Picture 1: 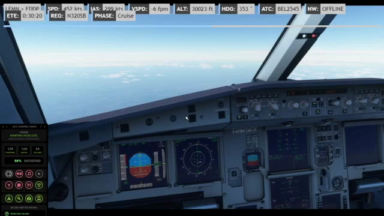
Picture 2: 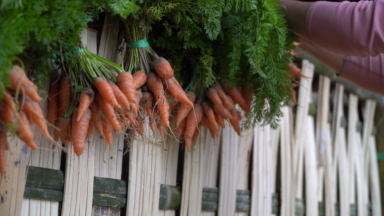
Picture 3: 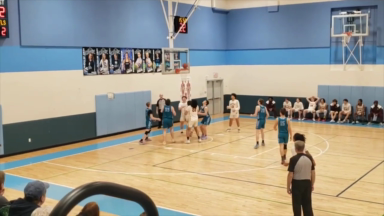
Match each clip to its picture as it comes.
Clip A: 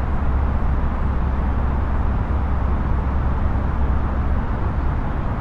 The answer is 1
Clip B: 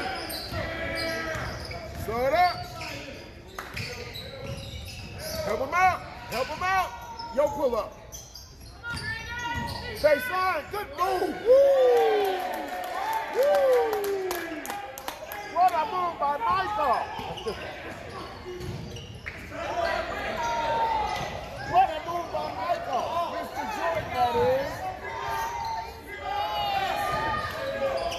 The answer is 3